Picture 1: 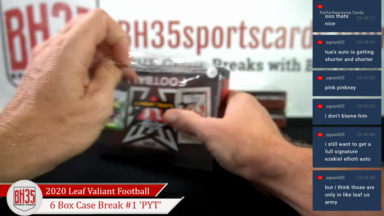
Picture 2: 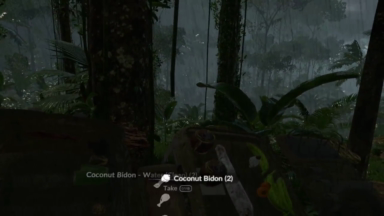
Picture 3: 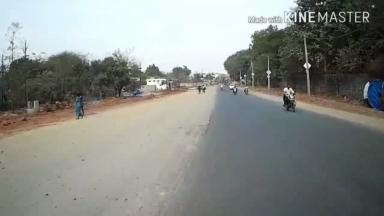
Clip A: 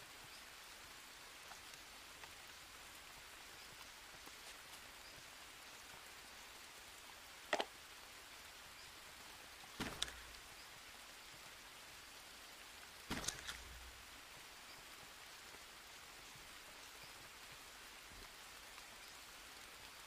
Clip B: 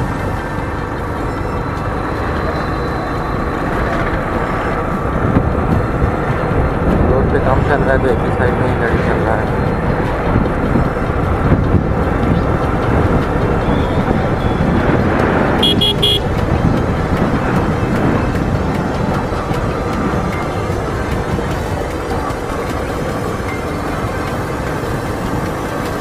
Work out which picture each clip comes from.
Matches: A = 2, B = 3